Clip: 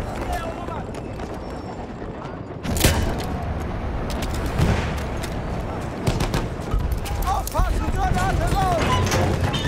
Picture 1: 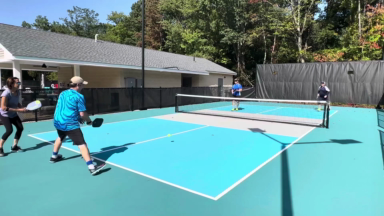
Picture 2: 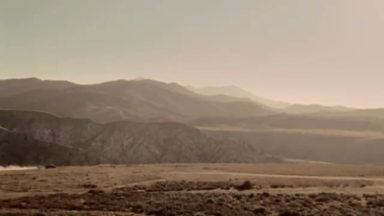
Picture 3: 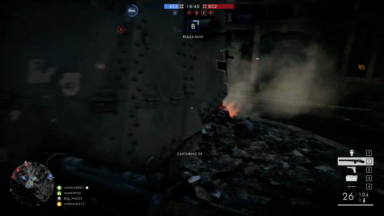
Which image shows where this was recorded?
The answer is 3